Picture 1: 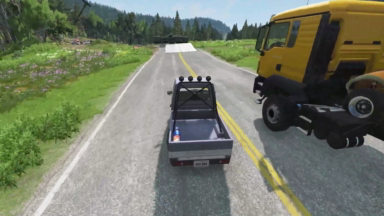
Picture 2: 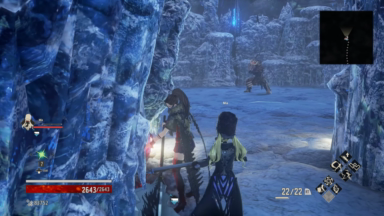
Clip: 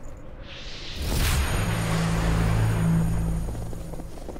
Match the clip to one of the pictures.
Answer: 2